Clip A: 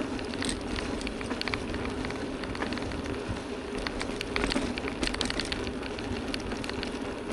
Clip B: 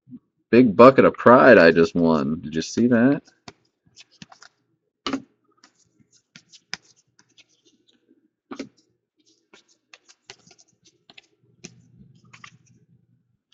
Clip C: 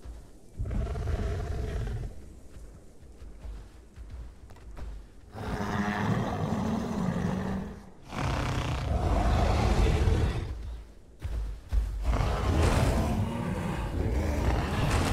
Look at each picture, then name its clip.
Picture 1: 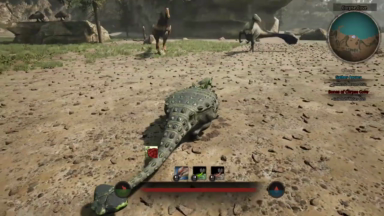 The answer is C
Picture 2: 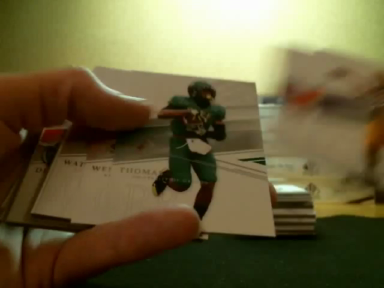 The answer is B